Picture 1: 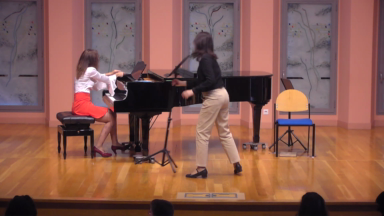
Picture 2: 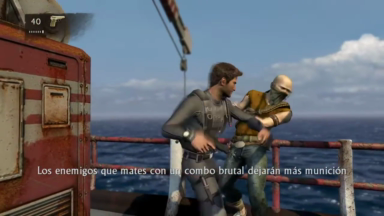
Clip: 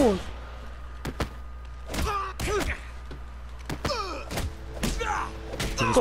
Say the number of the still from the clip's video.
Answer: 2